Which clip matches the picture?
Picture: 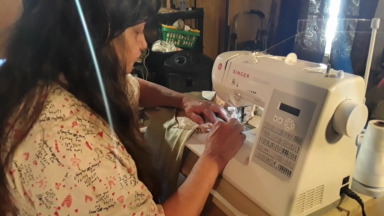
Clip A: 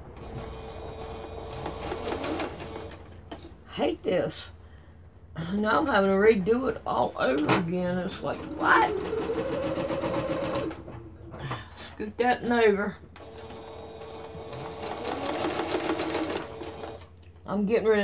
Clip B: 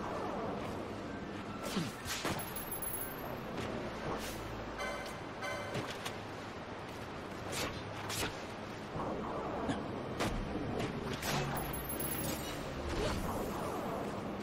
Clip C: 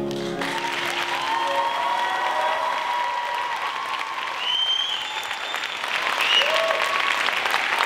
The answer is A